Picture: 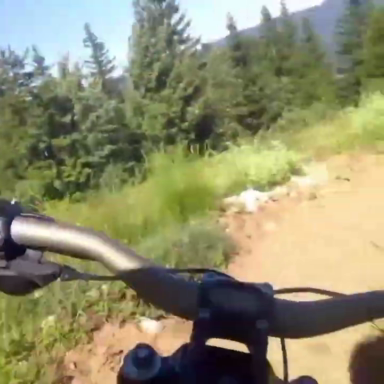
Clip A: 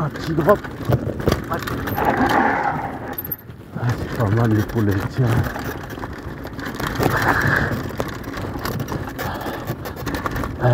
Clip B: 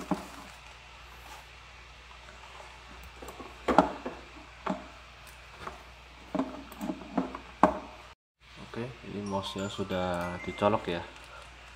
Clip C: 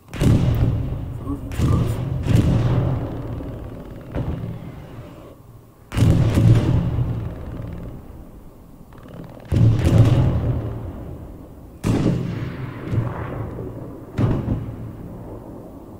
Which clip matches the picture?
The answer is A